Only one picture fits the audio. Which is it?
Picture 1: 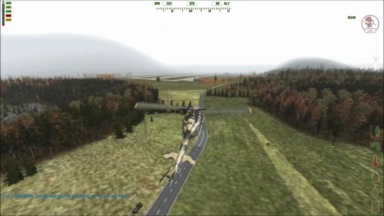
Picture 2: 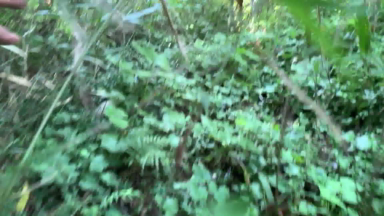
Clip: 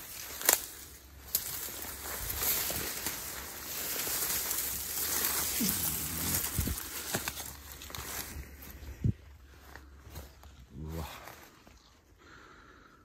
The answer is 2